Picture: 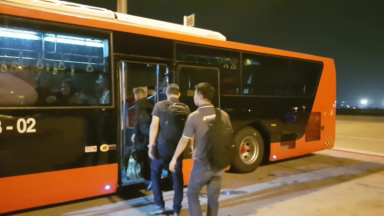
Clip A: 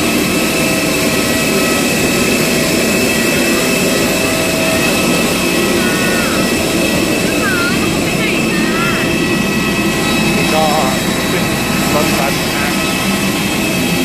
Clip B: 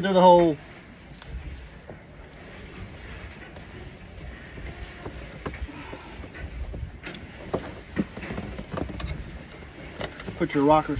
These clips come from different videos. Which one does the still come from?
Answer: A